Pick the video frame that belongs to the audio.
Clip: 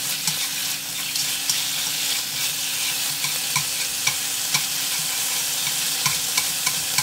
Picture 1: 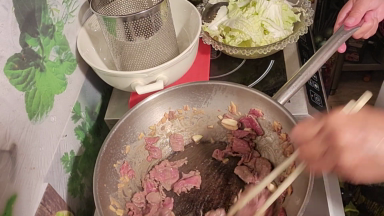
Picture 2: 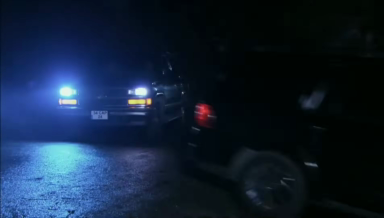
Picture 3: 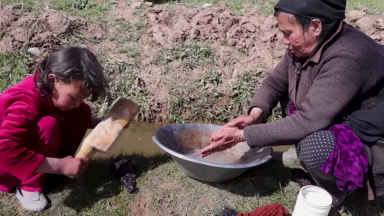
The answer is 1